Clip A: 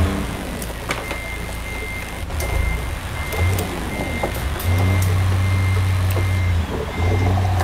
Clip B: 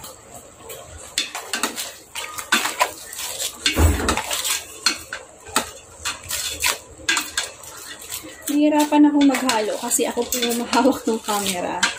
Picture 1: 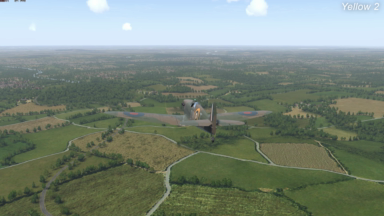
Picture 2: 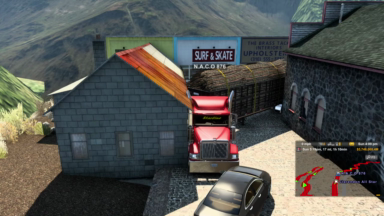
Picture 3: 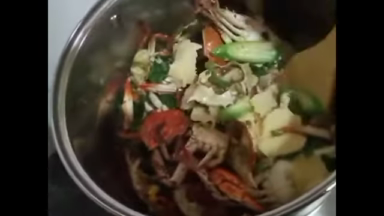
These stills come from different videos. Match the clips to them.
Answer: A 2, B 3